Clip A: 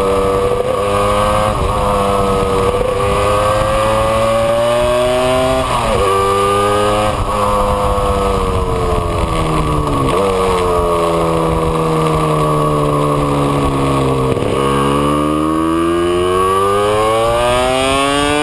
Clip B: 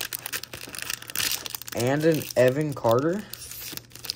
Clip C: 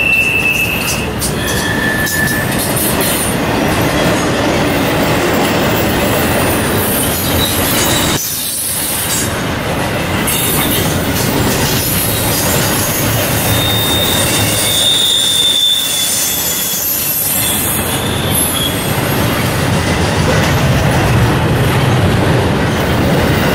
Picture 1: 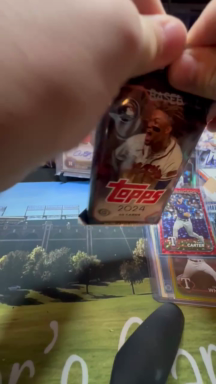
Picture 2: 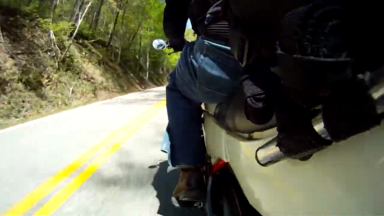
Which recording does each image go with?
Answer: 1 B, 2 A